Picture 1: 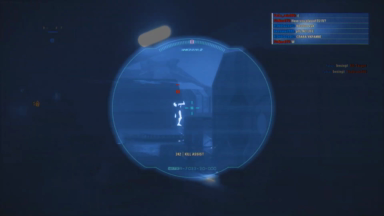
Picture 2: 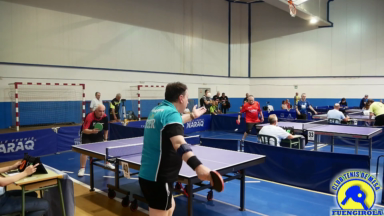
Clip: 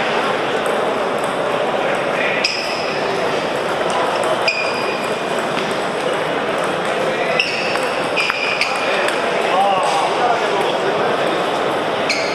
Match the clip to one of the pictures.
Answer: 2